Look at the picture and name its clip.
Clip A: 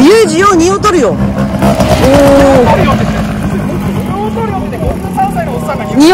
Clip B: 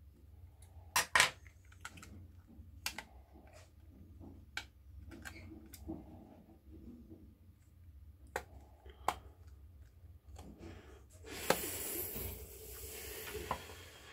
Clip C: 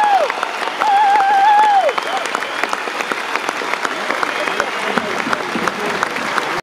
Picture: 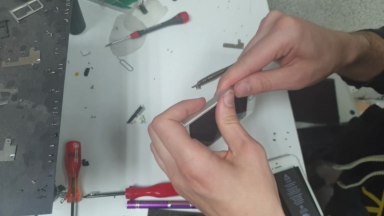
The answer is B